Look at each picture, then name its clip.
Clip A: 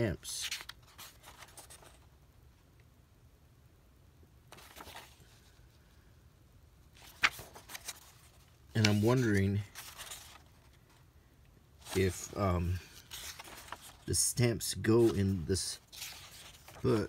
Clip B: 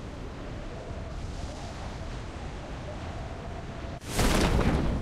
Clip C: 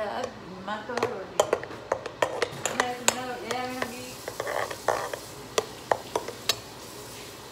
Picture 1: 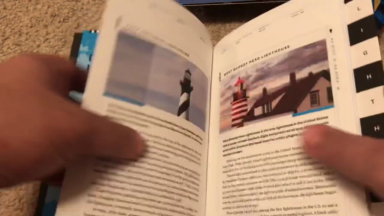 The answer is A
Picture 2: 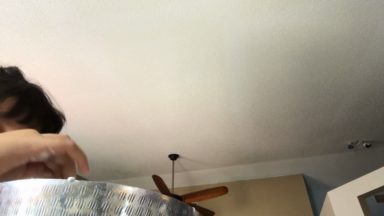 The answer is C